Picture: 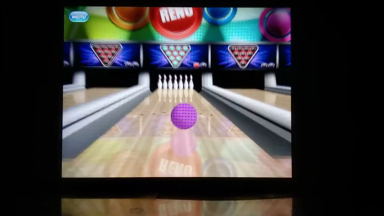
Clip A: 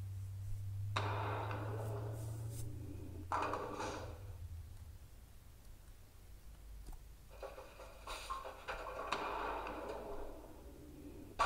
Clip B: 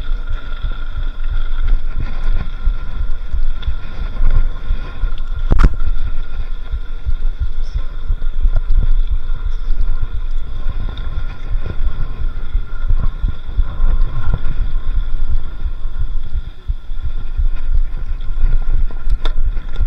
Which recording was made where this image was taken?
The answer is A